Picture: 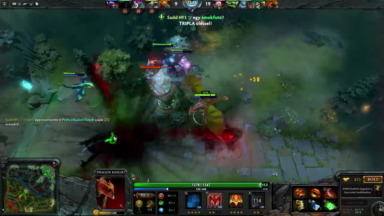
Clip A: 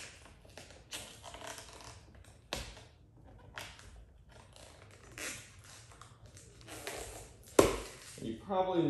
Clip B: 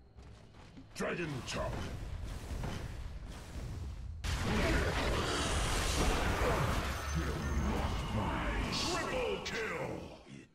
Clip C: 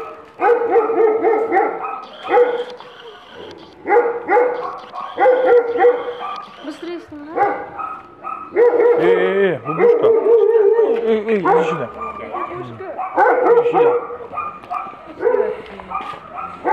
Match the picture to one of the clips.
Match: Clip B